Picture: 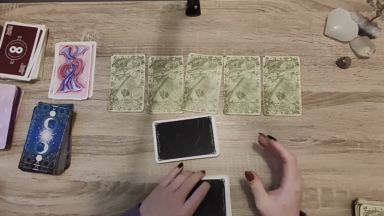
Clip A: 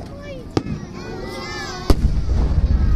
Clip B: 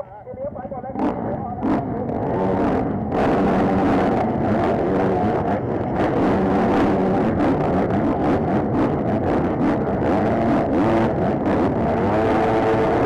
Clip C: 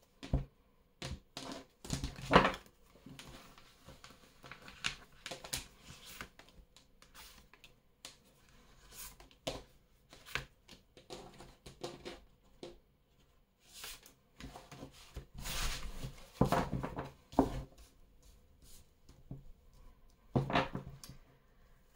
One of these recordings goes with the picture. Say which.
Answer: C